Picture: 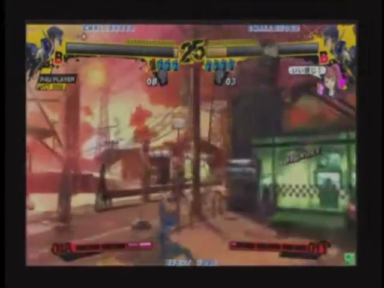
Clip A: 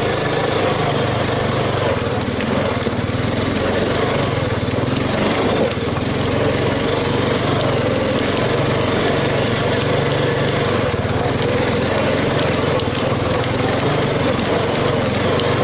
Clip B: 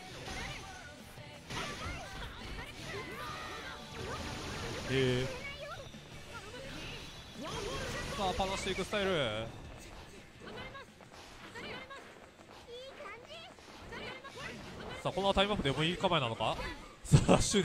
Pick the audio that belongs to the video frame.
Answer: B